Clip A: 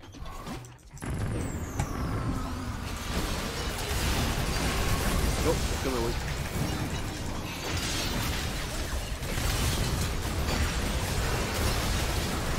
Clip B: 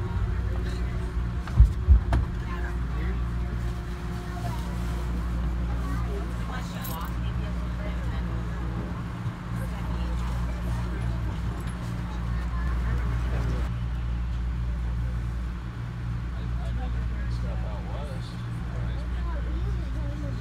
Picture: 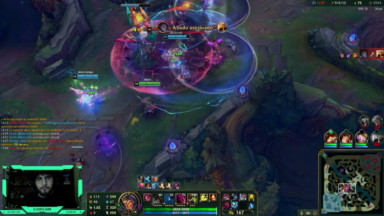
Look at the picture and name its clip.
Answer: A